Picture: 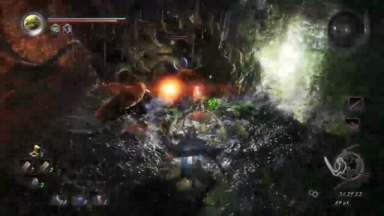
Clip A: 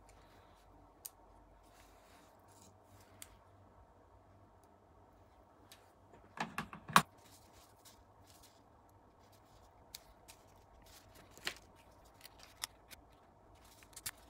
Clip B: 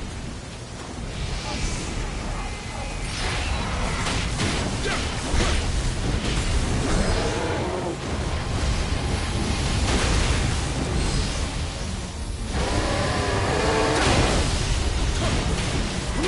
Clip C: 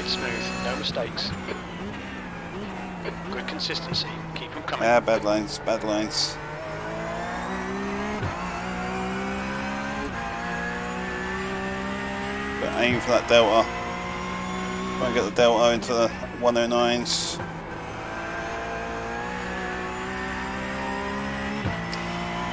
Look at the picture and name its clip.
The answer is B